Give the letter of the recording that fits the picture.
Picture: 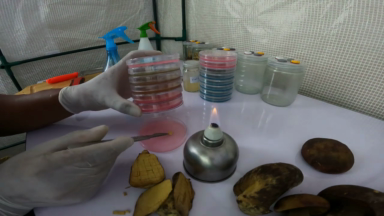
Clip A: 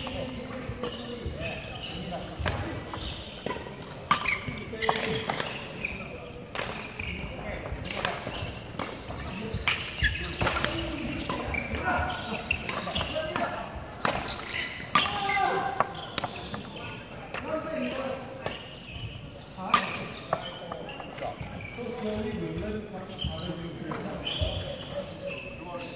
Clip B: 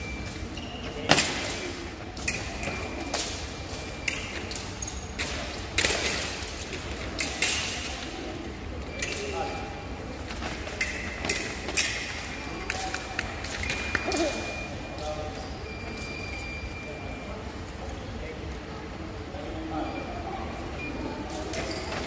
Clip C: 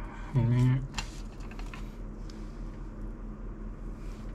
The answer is C